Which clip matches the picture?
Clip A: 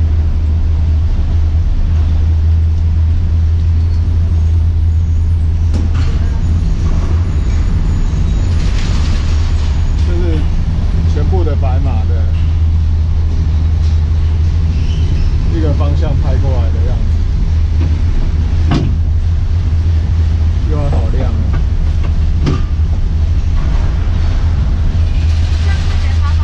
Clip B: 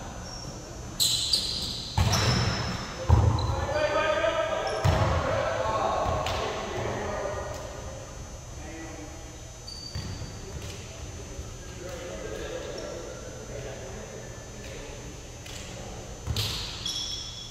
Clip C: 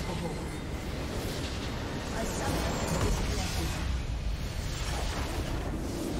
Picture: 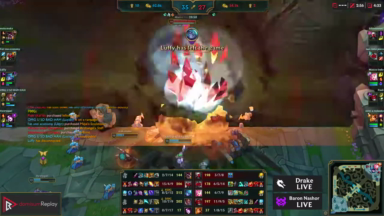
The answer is C